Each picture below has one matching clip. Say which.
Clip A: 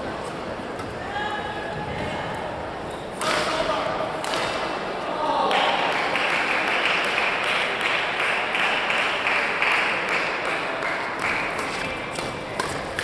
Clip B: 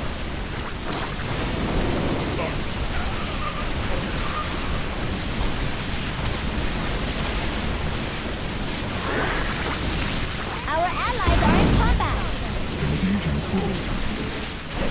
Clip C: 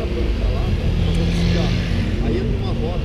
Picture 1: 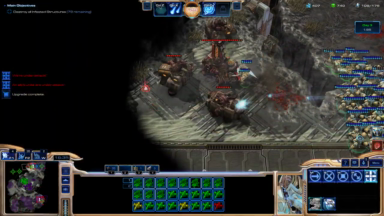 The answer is B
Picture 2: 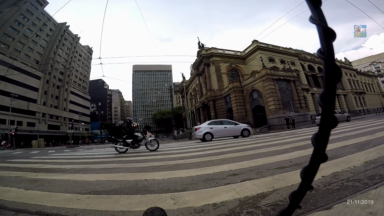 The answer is C